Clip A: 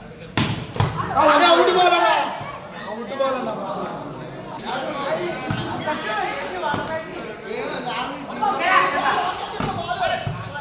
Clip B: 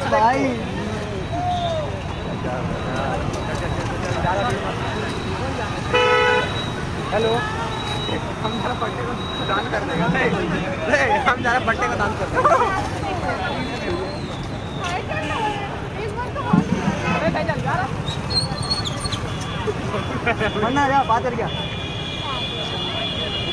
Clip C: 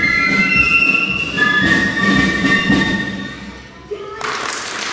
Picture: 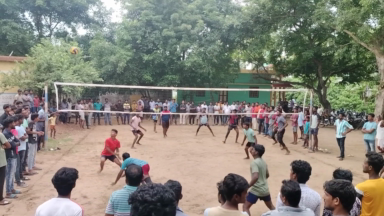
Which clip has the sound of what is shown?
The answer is A